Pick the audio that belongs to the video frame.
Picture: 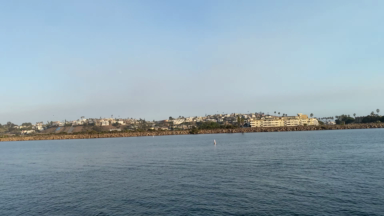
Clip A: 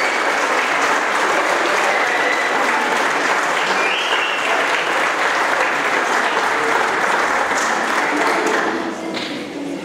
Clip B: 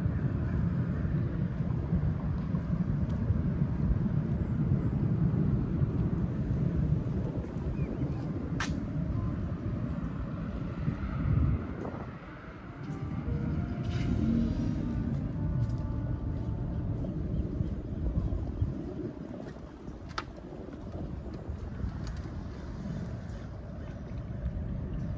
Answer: B